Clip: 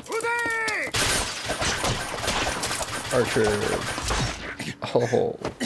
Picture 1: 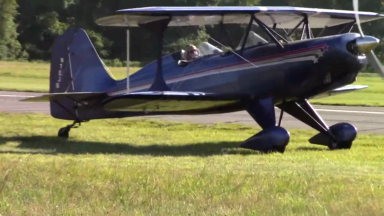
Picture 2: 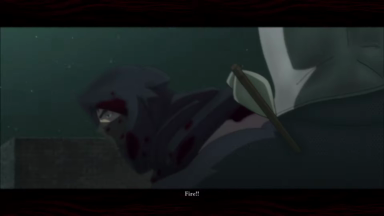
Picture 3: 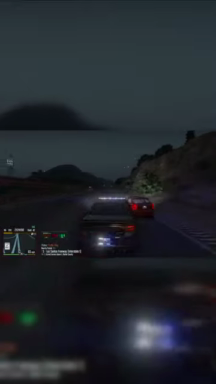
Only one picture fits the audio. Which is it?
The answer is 2